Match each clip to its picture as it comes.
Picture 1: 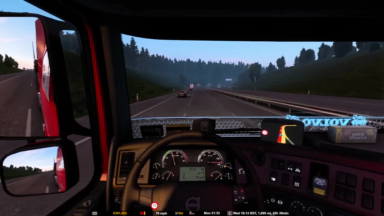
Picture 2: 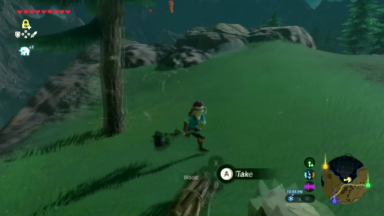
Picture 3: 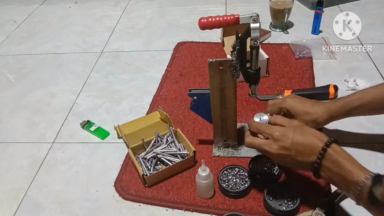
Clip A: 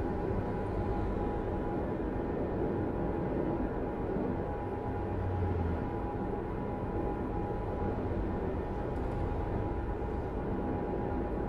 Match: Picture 1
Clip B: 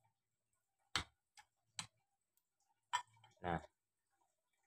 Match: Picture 3